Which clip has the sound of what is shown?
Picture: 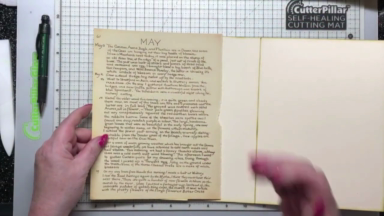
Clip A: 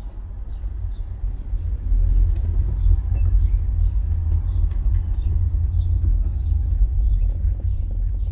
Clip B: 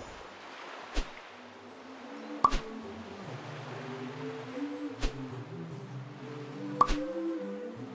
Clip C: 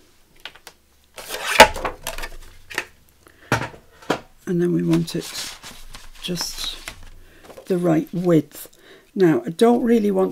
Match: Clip C